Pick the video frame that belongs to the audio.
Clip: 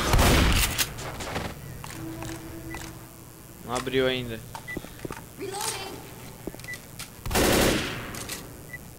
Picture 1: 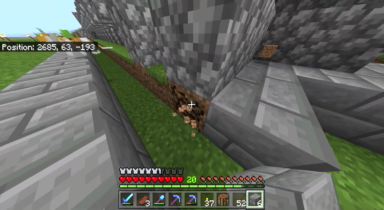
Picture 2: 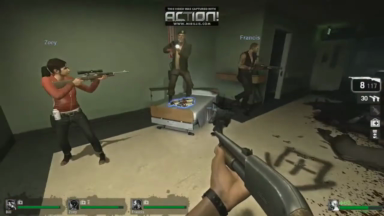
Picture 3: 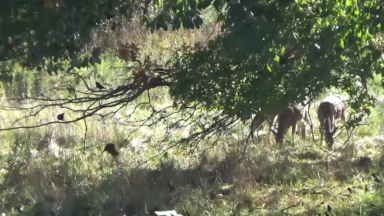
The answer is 2